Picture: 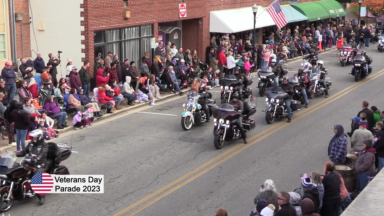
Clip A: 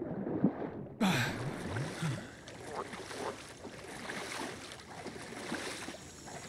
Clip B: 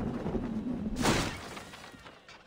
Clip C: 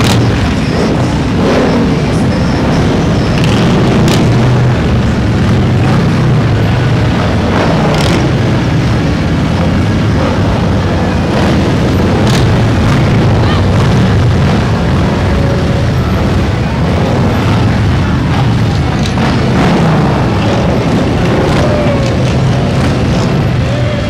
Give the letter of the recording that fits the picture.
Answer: C